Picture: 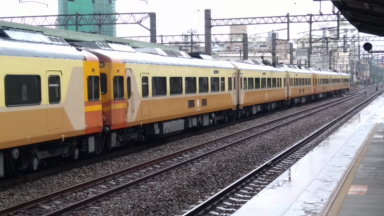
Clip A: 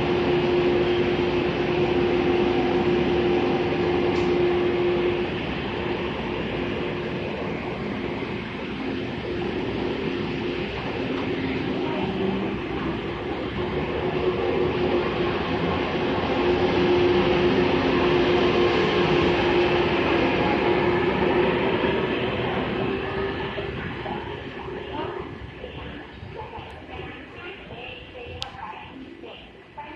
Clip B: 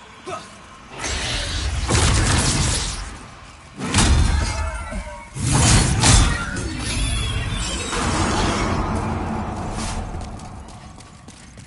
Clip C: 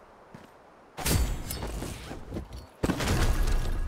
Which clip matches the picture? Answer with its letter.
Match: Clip A